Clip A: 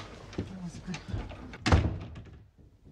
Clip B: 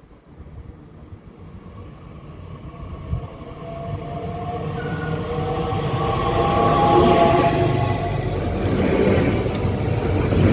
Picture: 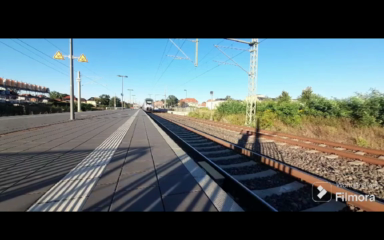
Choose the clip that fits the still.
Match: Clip B